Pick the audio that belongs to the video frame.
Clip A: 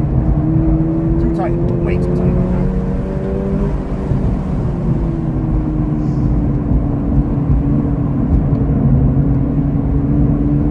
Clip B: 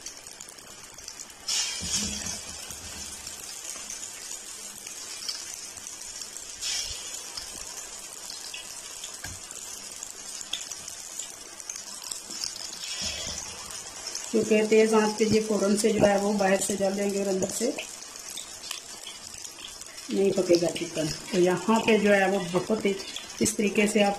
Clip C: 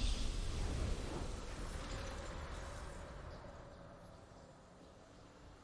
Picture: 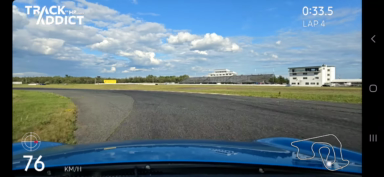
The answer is A